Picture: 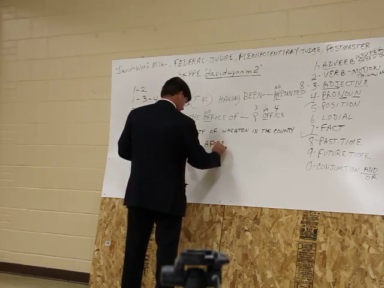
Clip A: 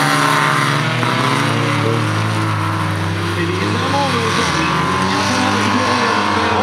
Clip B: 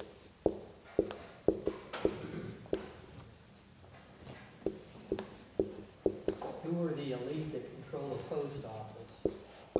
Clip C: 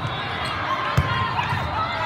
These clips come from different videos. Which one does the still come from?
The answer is B